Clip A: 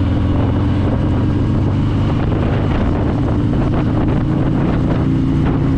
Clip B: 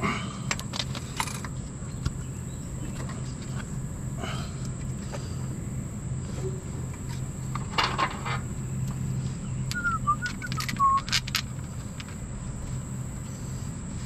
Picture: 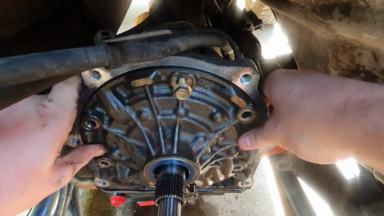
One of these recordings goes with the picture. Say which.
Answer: B